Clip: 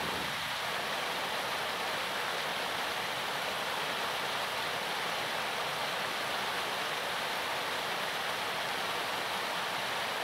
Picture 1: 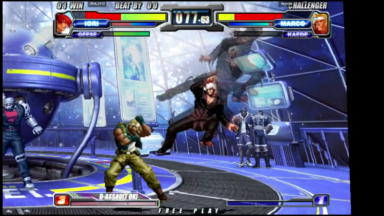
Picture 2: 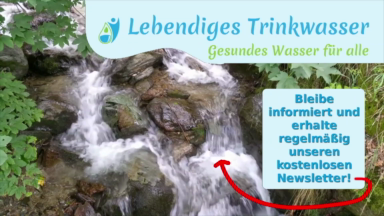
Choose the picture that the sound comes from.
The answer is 2